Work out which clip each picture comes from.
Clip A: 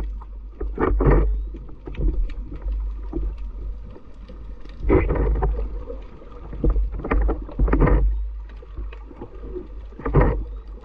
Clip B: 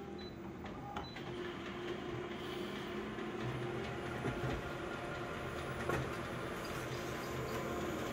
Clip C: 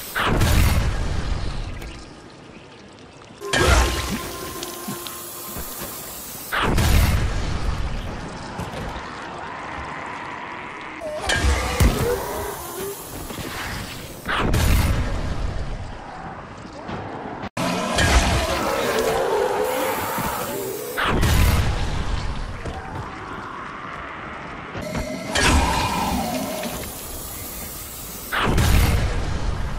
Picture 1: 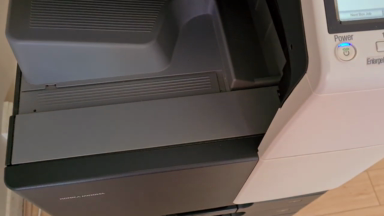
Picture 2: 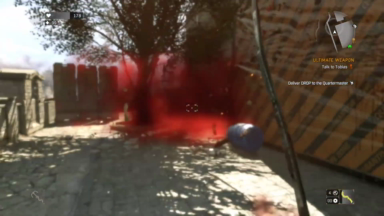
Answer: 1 B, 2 C